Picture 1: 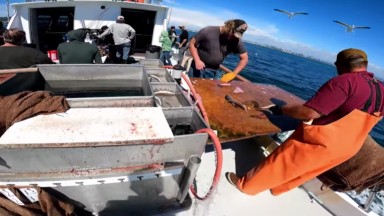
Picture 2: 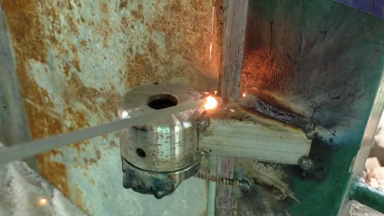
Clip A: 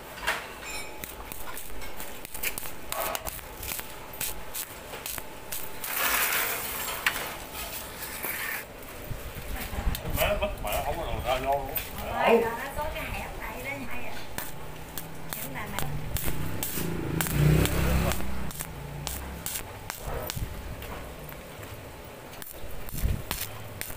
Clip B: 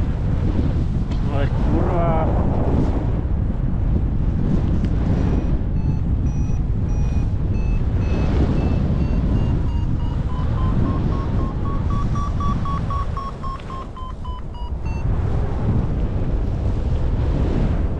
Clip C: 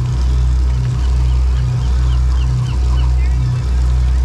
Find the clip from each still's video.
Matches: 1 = C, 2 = A